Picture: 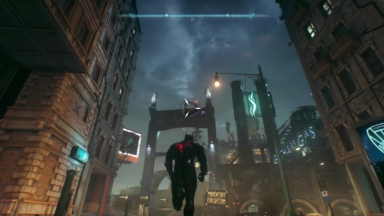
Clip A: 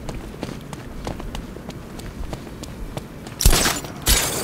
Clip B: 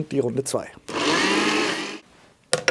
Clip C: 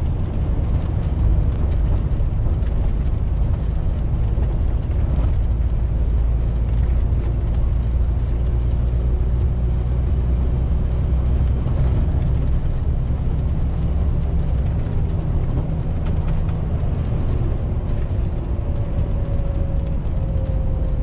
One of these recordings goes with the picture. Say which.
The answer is A